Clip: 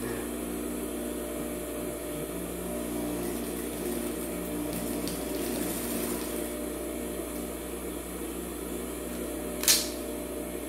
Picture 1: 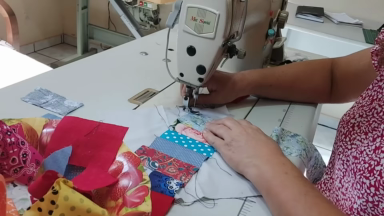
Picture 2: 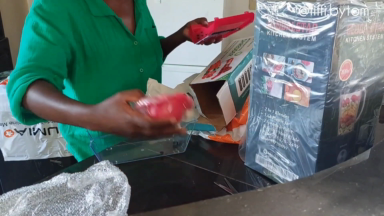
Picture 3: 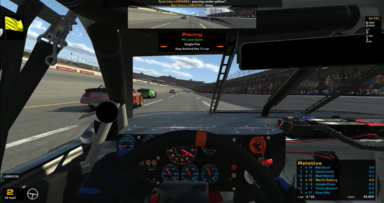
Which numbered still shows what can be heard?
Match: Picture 1